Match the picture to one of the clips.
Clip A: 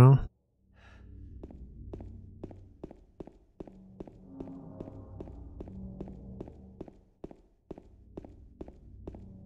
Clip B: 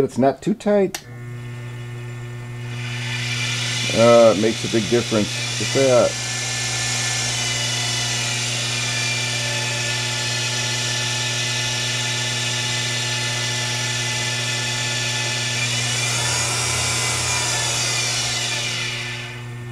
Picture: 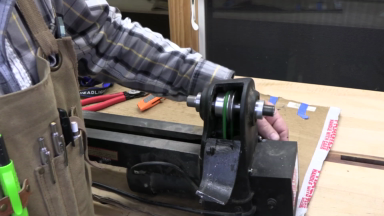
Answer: B